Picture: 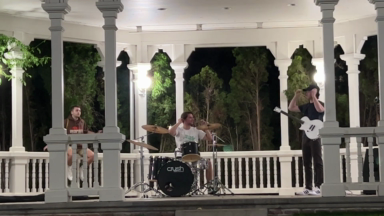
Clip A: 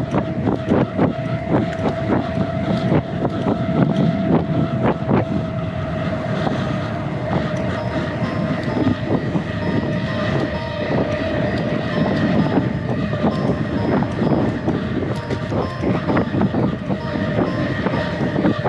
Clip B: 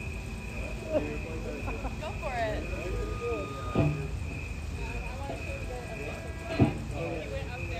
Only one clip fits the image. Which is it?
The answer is B